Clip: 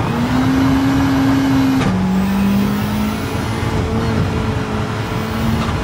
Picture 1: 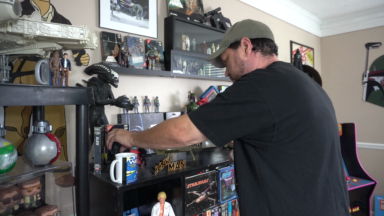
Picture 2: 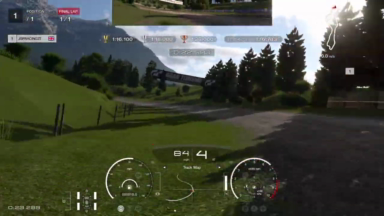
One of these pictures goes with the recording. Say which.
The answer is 2